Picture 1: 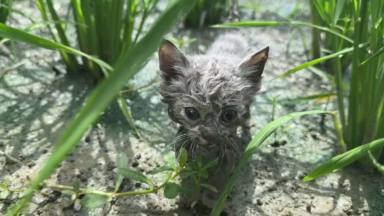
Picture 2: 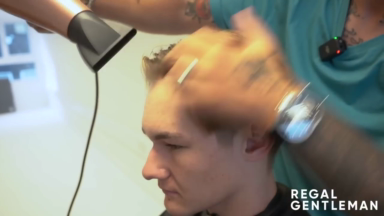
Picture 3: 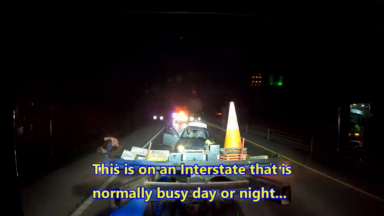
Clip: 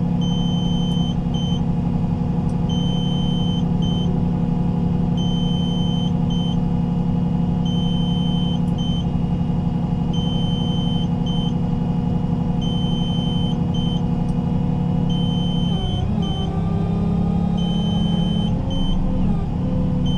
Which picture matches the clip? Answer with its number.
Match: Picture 3